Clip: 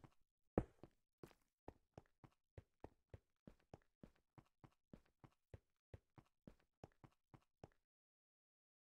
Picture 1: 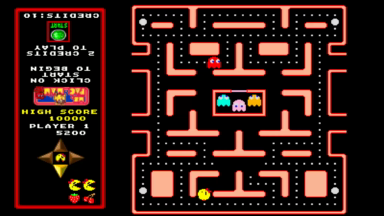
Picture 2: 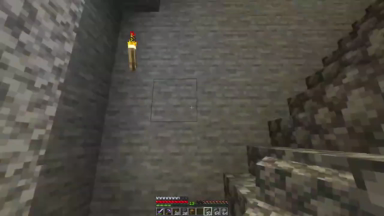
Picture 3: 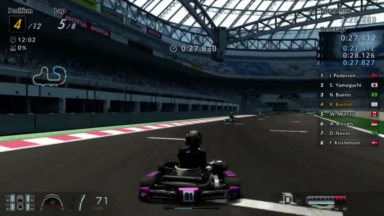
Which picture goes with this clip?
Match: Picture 2